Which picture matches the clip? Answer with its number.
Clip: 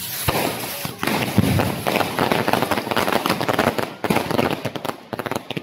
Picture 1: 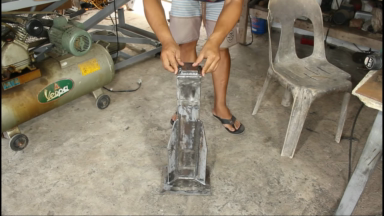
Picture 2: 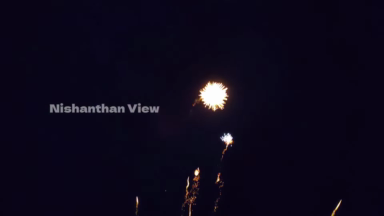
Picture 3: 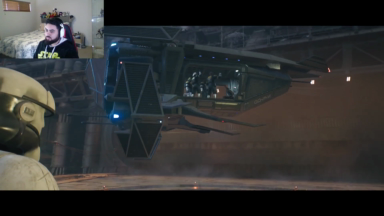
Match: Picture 2